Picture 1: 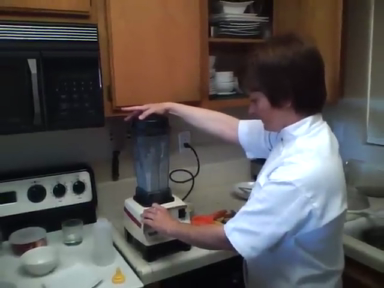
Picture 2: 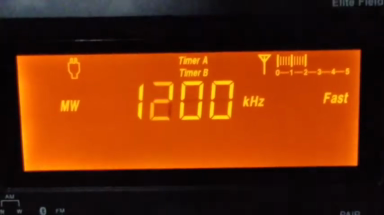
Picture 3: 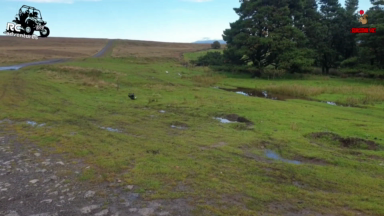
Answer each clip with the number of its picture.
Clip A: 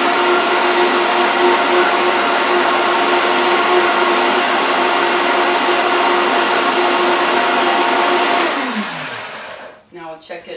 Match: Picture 1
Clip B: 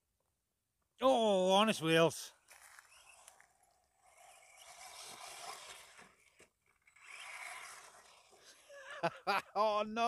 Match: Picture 3